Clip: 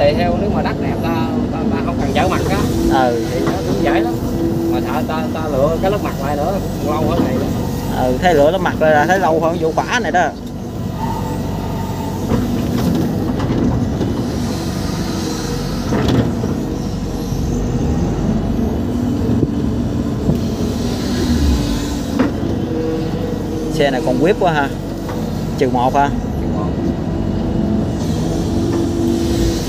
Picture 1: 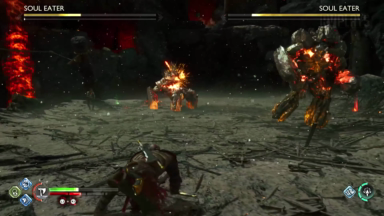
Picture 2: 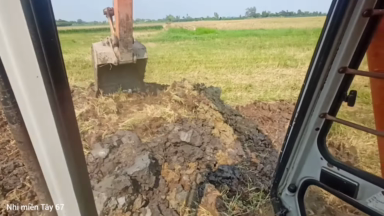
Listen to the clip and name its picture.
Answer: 2